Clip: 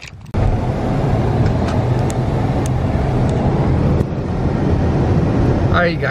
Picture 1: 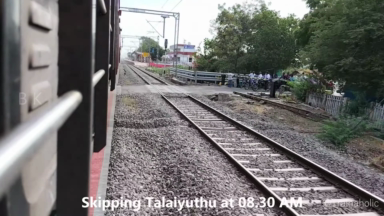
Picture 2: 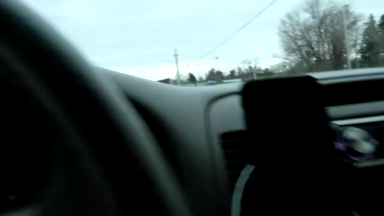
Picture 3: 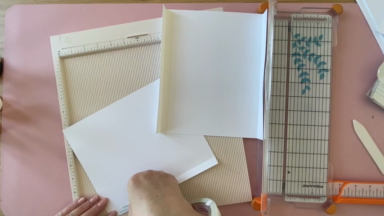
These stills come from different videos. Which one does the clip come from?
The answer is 2